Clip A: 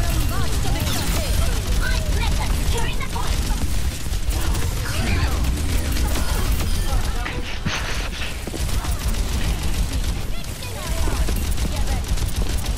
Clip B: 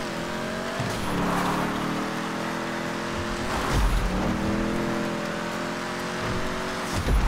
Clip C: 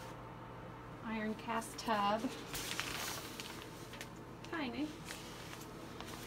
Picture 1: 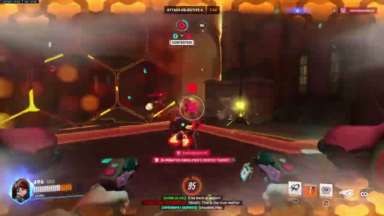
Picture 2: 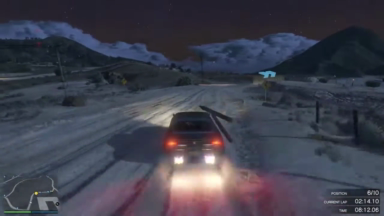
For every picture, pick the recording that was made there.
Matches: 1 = A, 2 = B